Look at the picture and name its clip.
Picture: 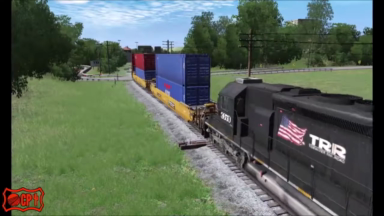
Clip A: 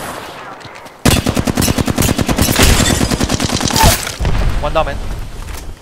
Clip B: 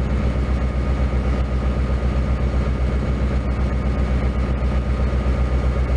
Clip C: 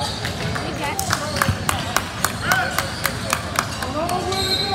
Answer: B